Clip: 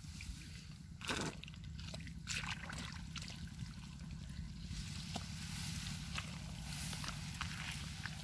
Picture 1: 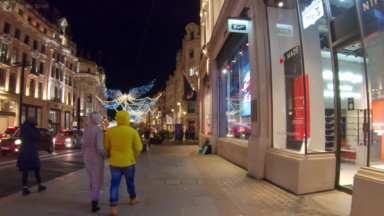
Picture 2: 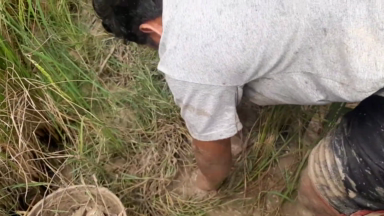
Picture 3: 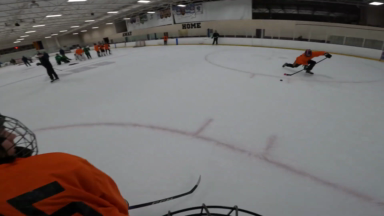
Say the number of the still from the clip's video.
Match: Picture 2